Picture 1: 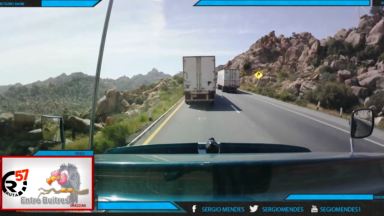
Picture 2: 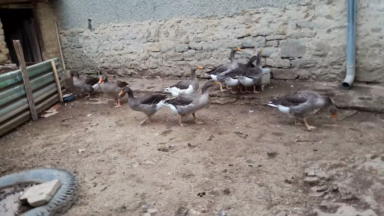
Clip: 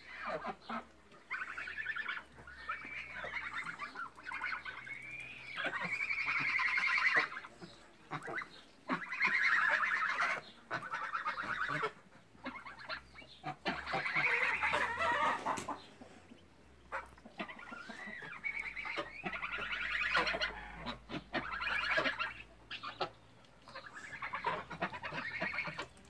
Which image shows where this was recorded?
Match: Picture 2